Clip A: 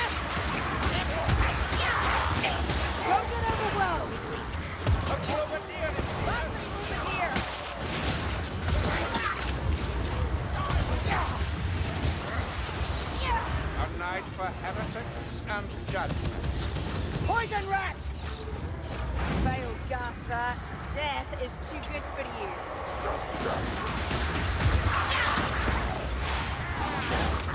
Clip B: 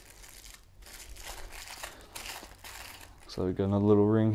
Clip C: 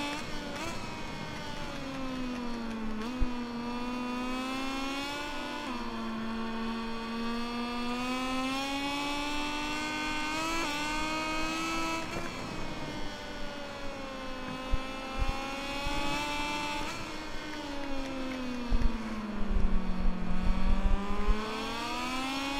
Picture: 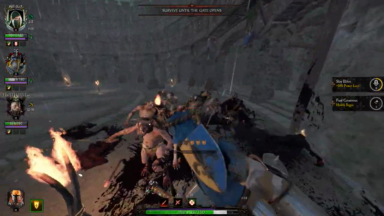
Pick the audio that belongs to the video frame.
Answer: A